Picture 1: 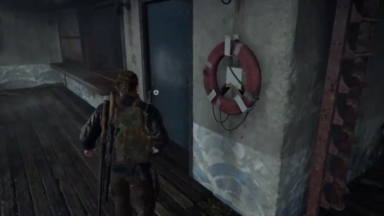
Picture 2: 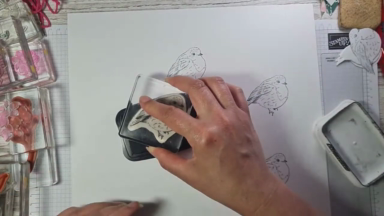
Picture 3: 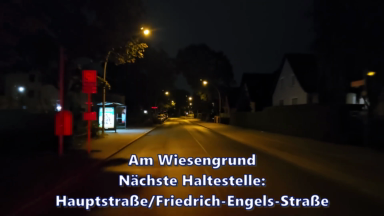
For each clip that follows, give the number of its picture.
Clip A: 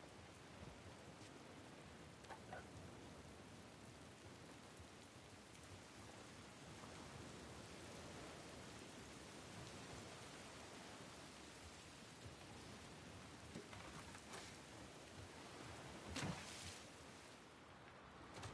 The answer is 1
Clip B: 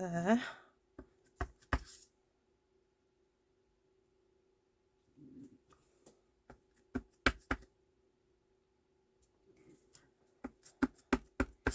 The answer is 2